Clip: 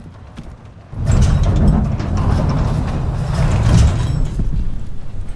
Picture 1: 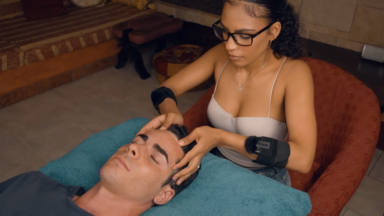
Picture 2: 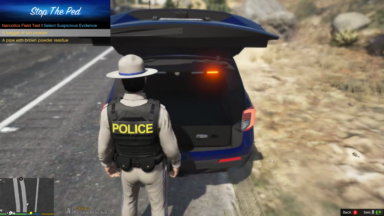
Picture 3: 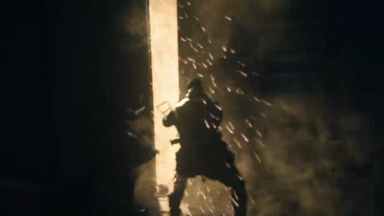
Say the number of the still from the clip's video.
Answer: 3